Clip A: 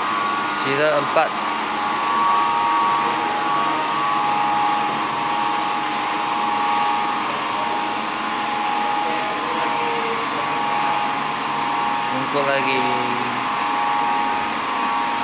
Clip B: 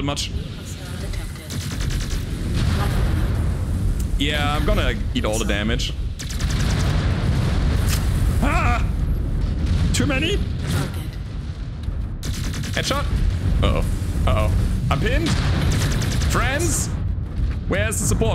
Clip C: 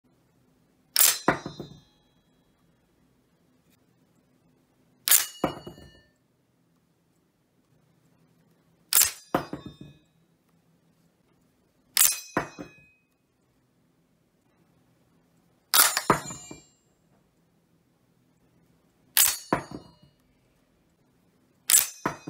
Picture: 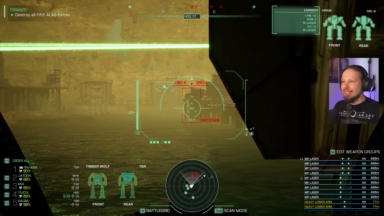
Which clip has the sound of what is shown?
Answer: B